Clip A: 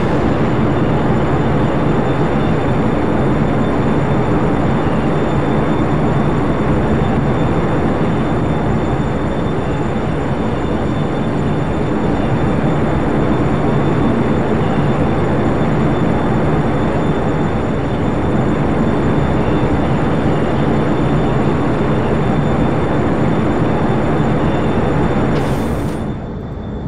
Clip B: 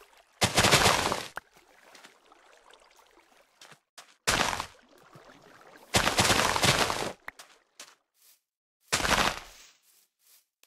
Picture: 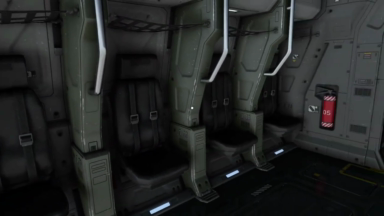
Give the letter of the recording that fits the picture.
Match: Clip A